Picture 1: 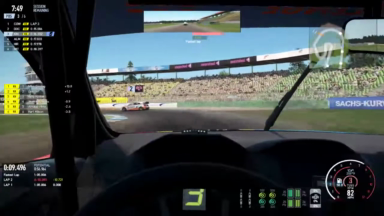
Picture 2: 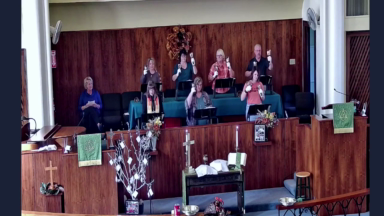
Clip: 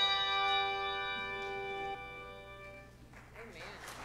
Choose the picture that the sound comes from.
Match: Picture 2